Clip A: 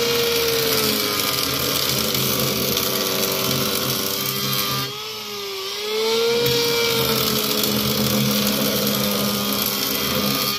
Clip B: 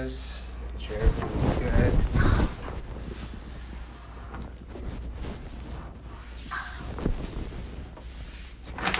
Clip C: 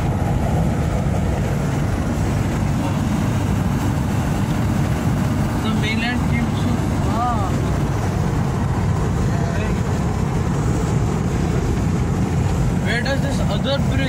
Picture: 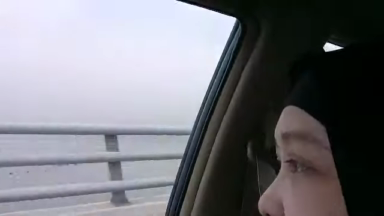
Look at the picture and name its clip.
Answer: C